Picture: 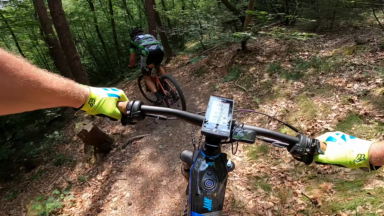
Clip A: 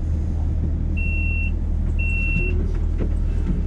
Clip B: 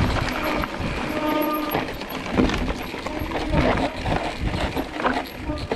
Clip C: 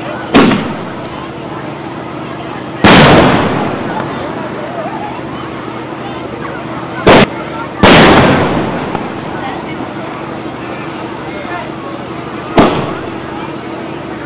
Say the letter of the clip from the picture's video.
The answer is B